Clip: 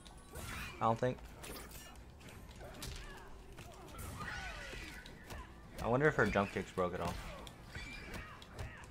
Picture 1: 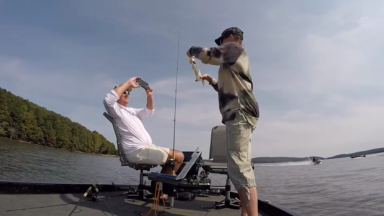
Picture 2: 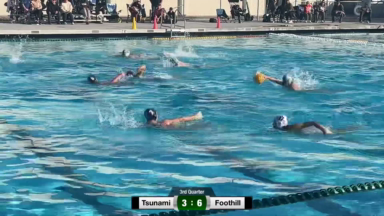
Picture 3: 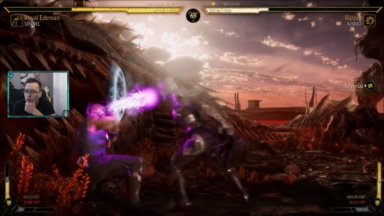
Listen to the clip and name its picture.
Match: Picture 3